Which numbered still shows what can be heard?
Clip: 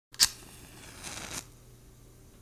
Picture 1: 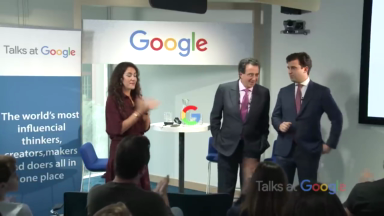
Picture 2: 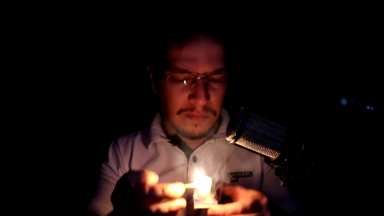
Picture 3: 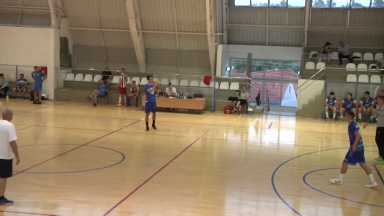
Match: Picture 2